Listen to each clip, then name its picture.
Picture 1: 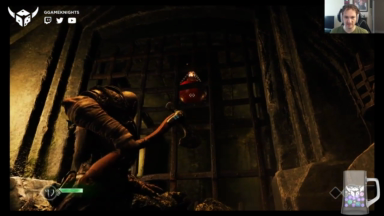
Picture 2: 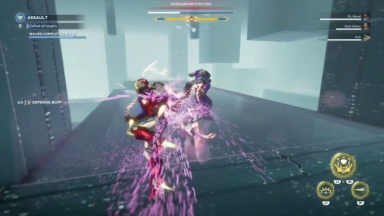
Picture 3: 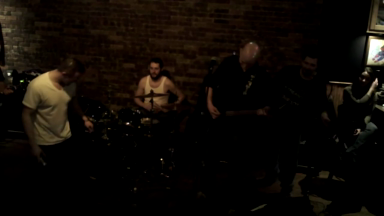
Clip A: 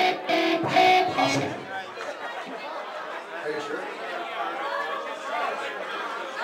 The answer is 3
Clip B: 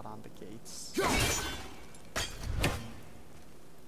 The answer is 1